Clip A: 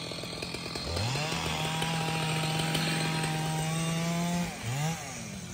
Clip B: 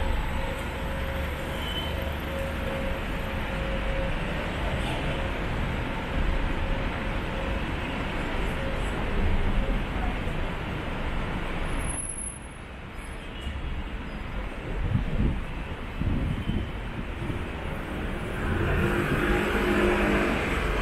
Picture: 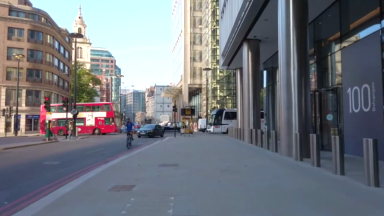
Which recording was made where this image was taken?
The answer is B